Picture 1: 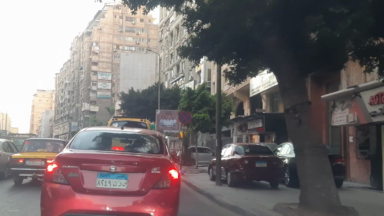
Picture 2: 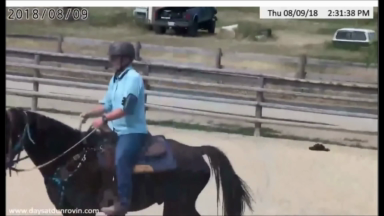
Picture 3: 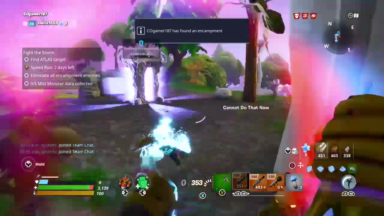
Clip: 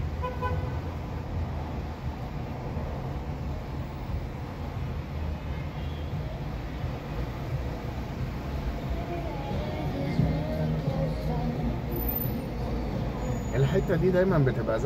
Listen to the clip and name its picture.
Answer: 1